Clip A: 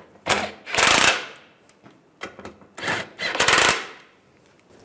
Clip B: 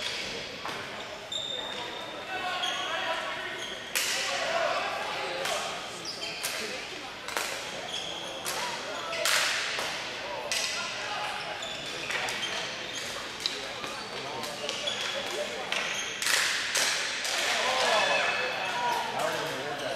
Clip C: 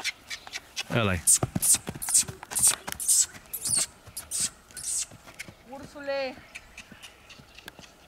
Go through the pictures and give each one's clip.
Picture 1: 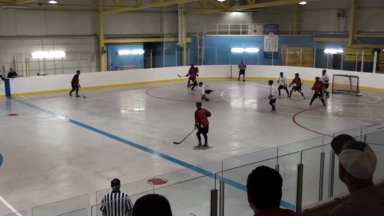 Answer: B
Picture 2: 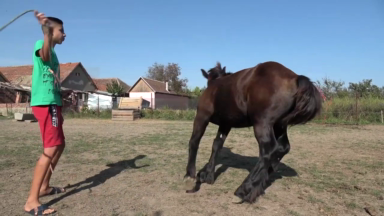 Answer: C